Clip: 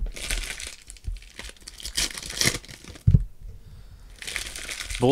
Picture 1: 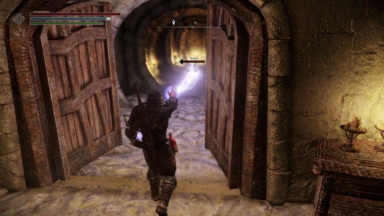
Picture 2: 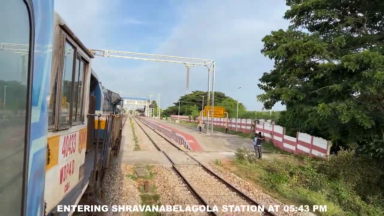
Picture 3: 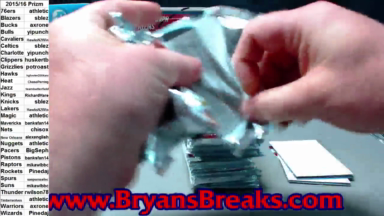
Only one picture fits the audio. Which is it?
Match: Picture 3